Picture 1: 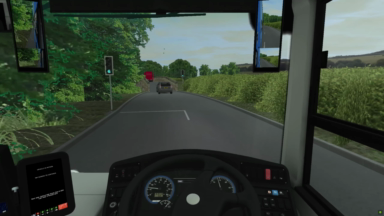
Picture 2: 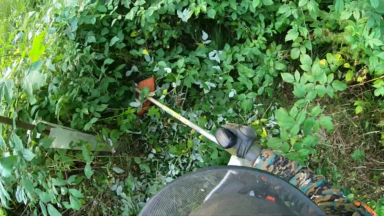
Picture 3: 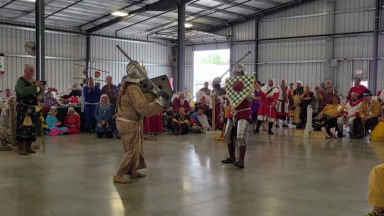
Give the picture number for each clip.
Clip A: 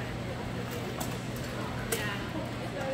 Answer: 3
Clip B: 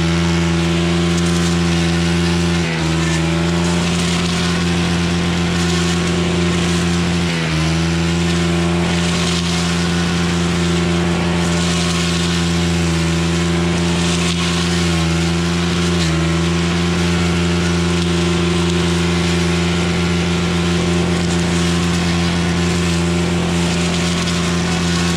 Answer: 2